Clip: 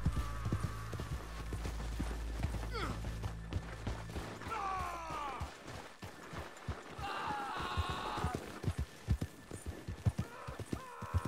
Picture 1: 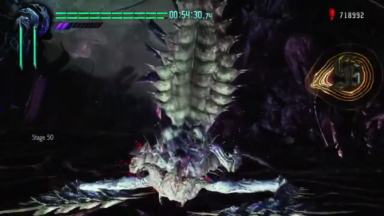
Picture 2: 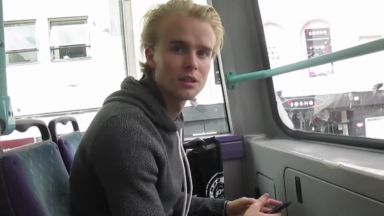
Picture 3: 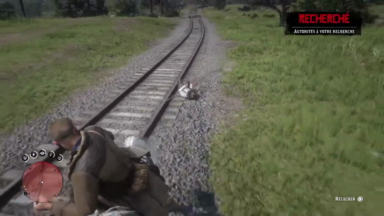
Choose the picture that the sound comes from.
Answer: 3